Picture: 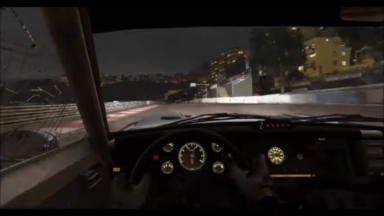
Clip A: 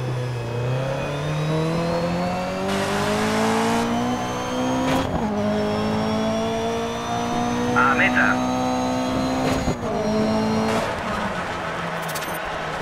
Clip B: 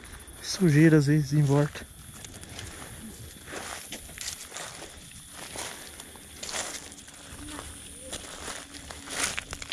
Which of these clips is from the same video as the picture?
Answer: A